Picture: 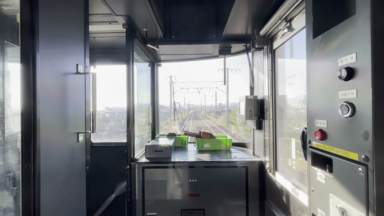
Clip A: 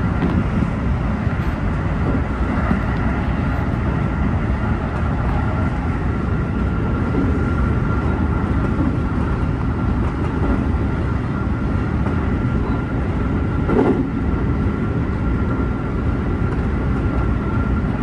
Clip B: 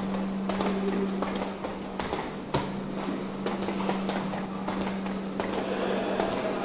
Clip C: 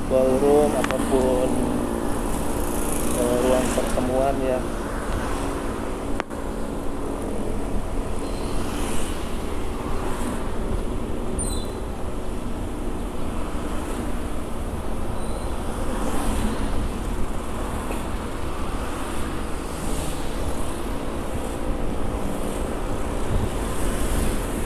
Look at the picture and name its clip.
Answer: A